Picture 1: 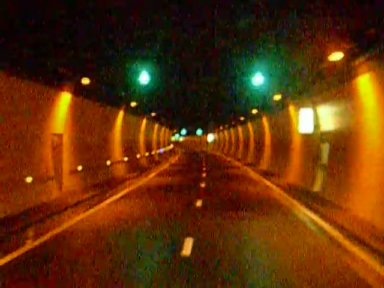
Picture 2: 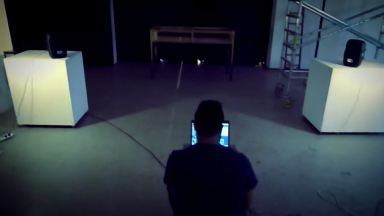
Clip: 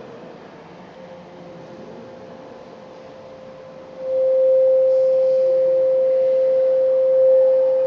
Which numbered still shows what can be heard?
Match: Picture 2